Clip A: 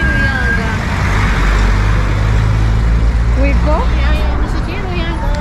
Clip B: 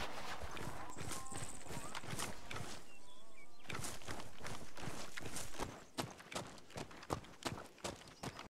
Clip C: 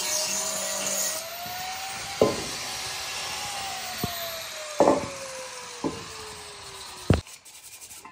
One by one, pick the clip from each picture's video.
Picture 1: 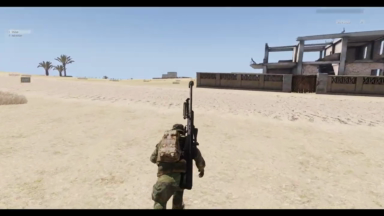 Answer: B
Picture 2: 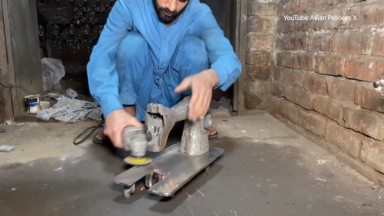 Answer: C